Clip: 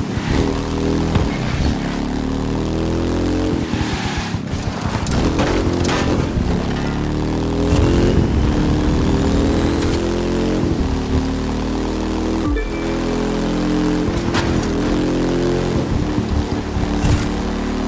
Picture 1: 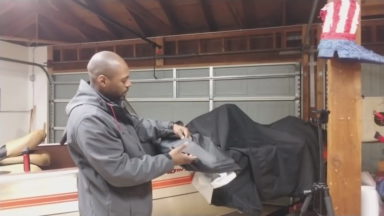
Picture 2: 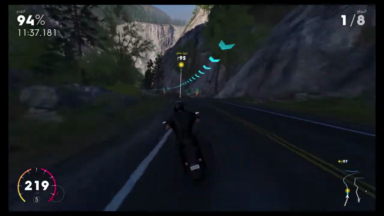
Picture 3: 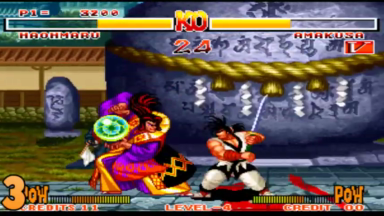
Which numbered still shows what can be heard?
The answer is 2